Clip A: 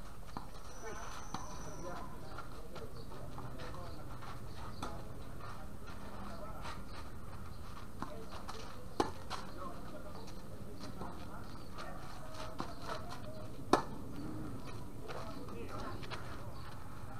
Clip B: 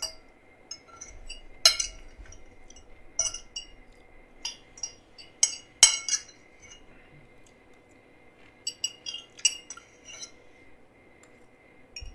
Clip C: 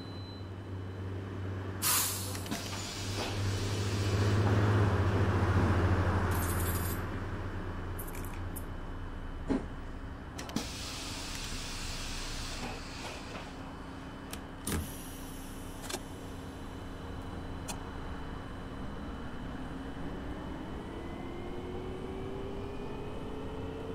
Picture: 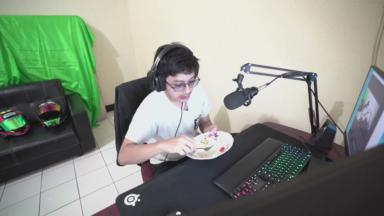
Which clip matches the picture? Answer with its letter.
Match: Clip B